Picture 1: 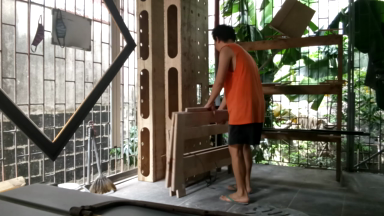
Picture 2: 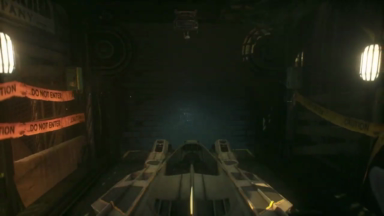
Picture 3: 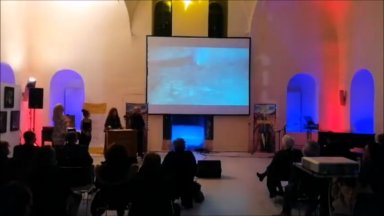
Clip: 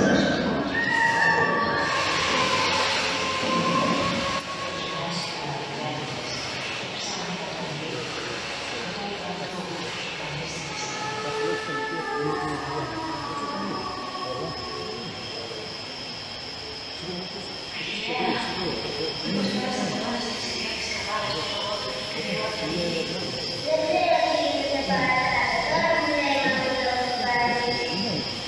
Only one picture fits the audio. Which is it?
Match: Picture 3